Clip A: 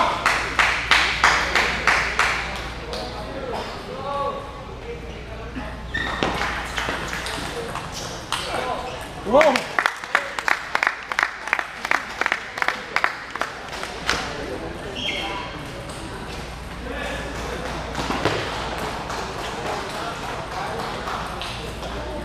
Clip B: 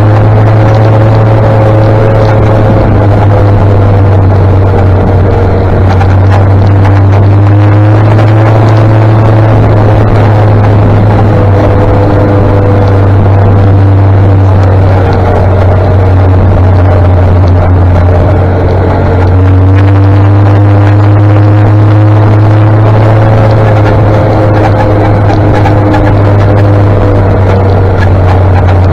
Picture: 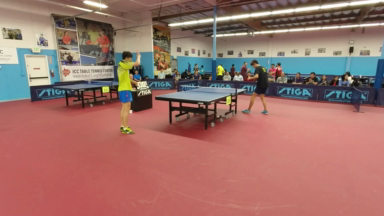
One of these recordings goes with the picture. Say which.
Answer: A